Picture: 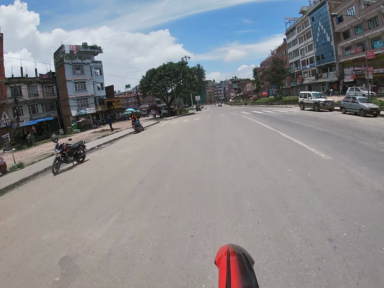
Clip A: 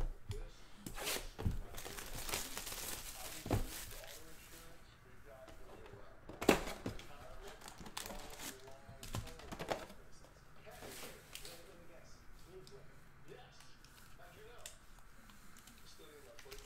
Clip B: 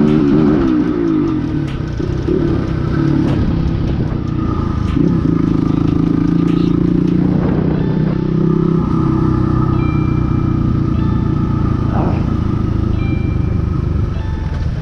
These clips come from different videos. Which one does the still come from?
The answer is B